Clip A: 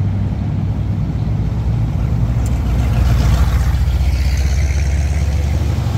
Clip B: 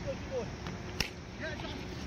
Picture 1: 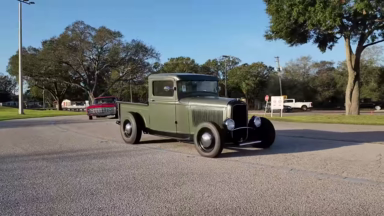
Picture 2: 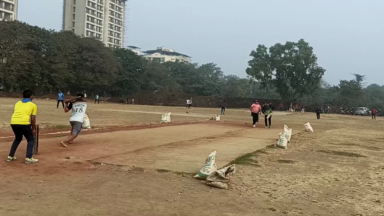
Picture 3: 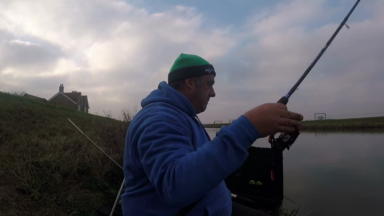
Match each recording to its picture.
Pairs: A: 1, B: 2